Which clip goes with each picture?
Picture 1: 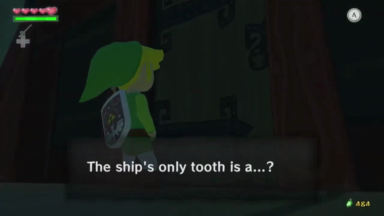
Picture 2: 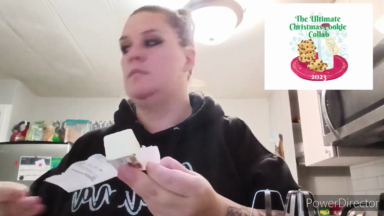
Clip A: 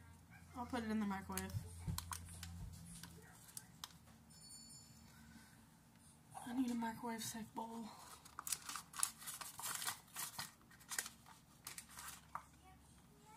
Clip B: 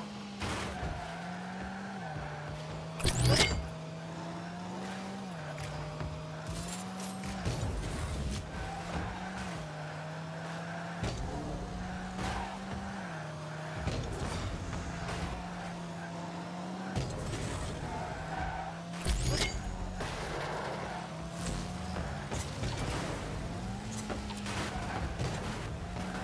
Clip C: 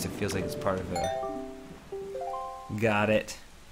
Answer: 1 C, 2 A